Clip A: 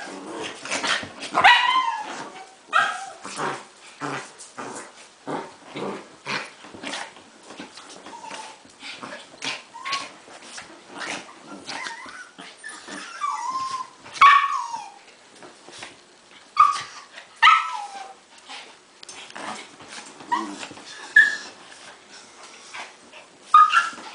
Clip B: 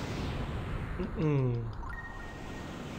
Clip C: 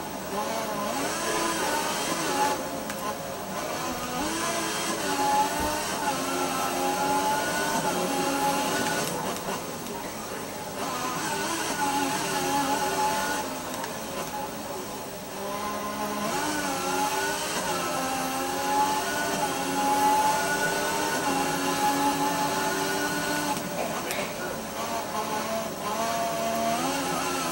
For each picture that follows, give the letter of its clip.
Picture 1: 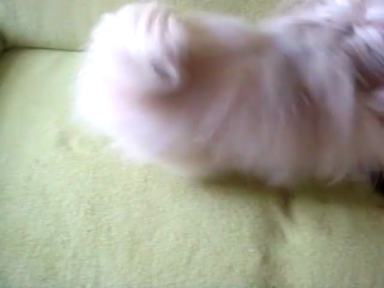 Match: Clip A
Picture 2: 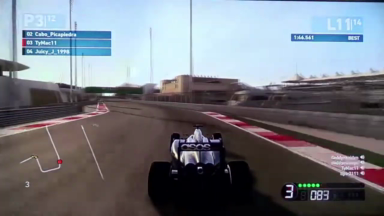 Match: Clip C